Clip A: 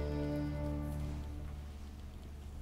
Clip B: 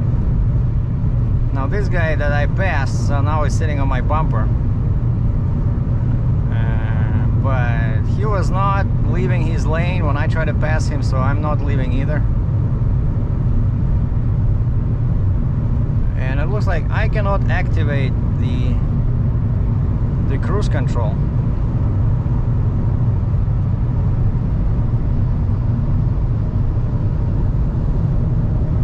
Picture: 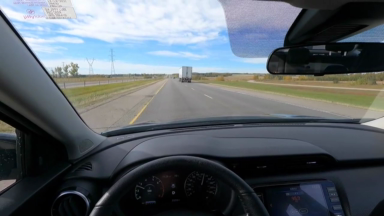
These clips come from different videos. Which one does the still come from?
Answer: B